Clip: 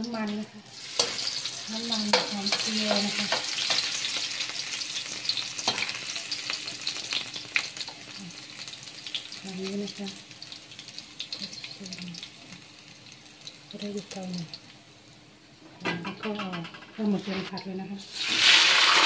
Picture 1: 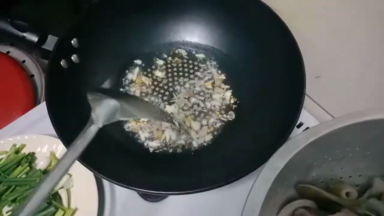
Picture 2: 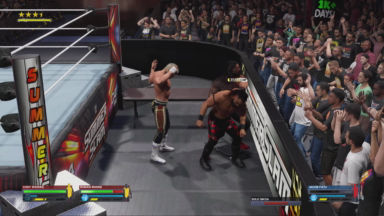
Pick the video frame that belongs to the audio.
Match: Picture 1